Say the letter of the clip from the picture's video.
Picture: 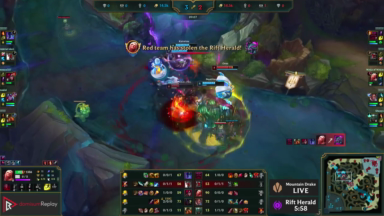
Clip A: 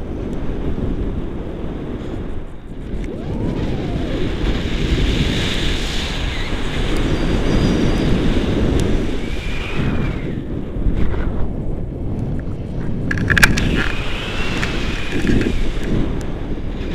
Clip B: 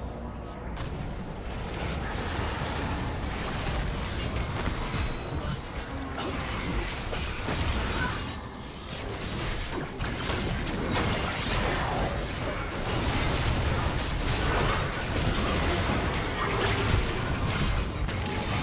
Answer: B